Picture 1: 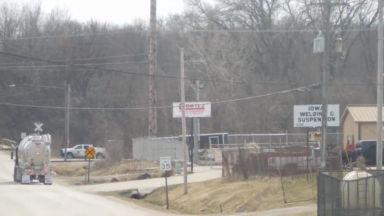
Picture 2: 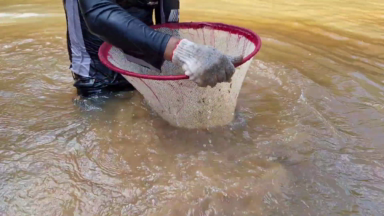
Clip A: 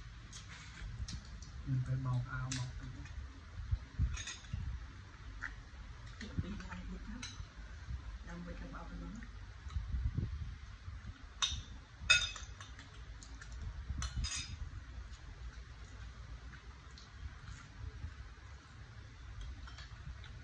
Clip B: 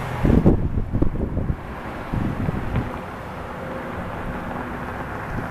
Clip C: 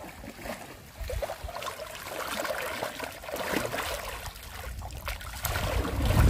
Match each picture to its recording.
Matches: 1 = B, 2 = C